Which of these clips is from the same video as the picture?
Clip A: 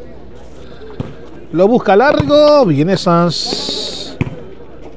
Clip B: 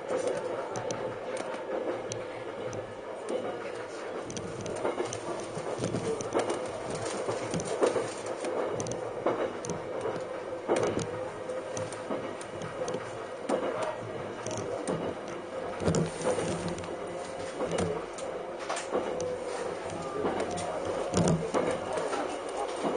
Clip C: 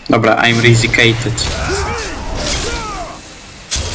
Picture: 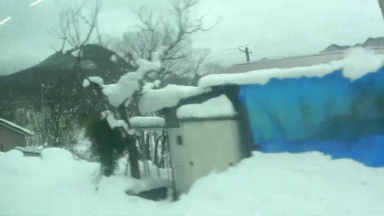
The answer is B